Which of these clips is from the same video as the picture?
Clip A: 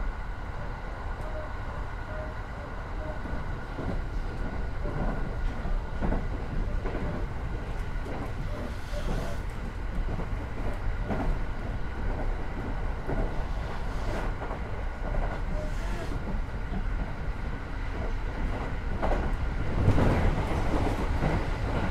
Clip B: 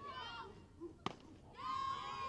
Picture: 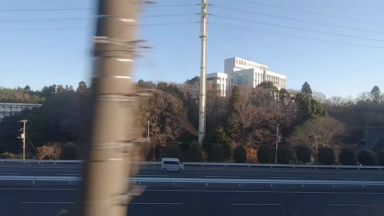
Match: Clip A